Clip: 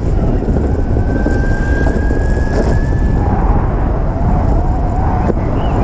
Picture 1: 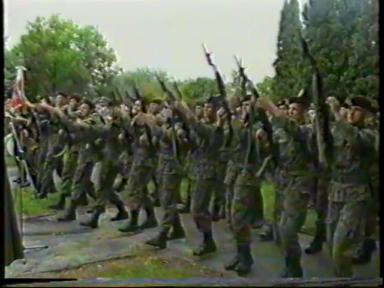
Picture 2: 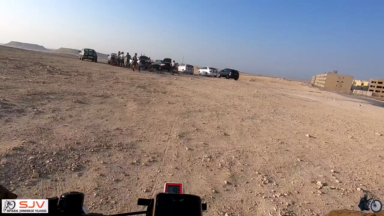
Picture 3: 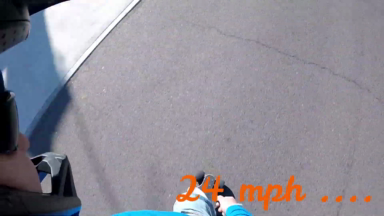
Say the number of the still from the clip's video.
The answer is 3